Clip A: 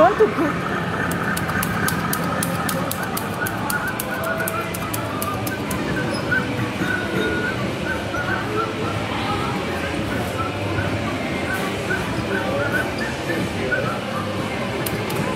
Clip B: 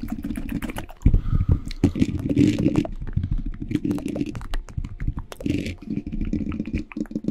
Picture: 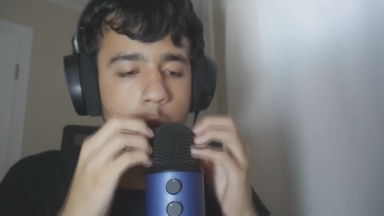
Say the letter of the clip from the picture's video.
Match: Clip B